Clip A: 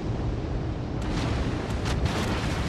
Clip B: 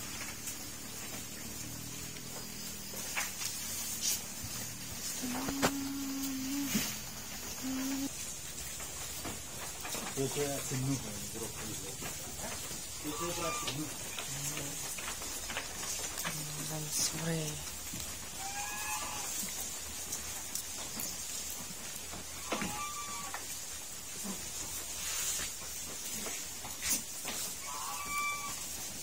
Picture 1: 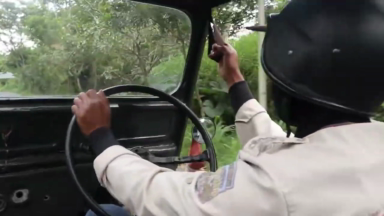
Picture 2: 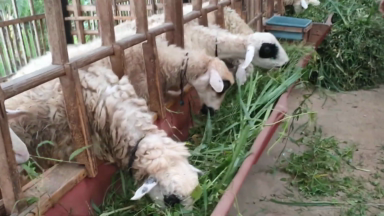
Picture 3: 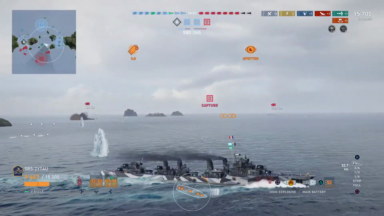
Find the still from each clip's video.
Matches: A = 3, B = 2